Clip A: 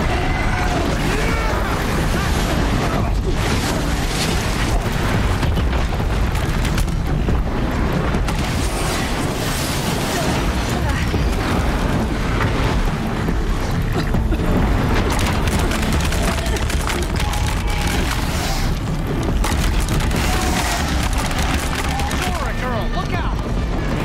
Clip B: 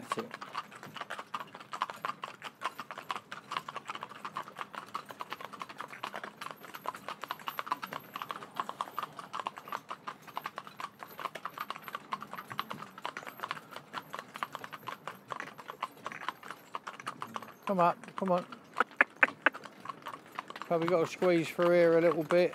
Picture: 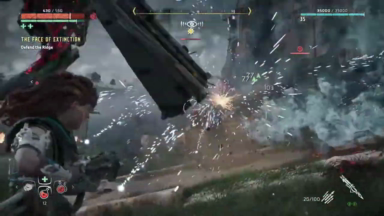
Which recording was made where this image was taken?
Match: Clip A